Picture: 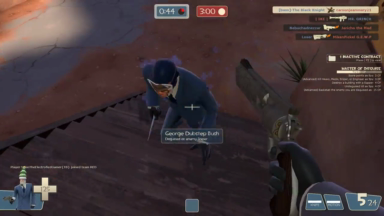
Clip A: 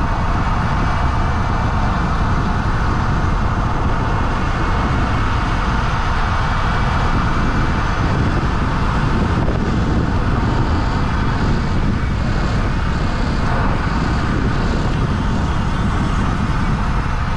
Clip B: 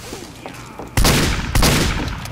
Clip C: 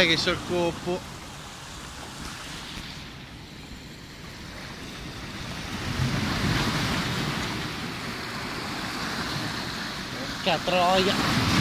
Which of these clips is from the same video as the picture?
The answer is B